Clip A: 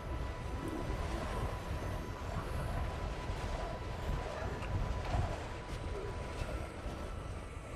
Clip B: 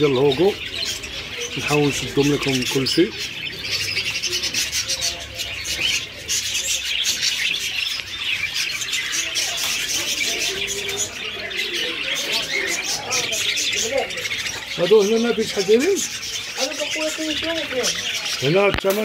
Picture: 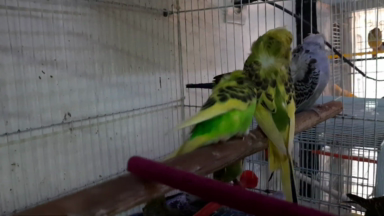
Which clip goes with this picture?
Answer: B